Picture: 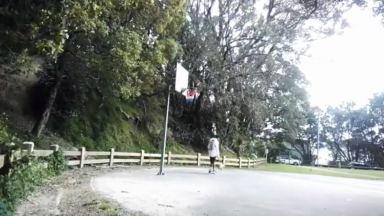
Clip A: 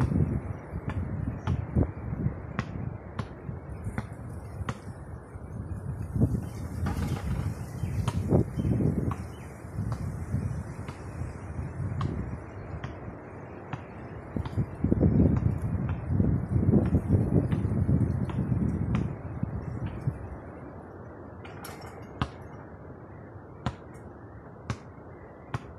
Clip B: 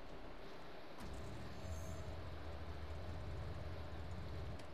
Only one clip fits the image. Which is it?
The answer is A